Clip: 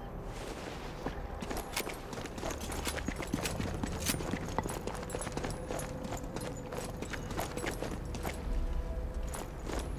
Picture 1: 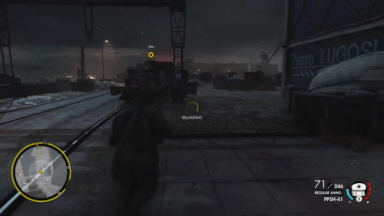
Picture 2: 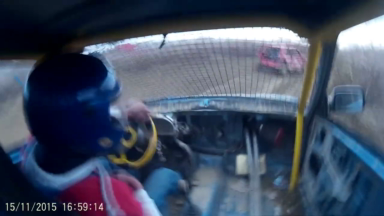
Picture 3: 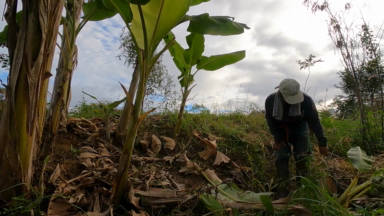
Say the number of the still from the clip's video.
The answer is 1